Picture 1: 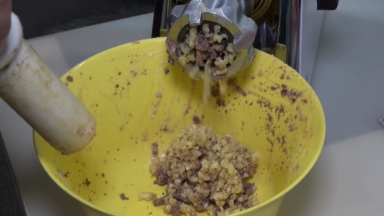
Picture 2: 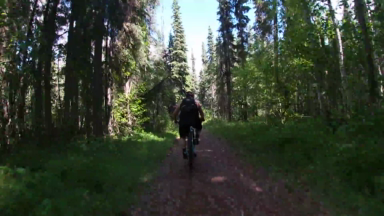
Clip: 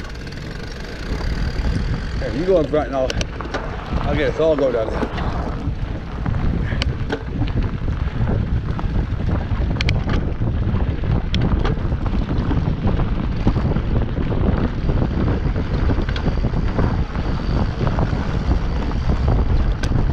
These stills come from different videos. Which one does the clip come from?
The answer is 2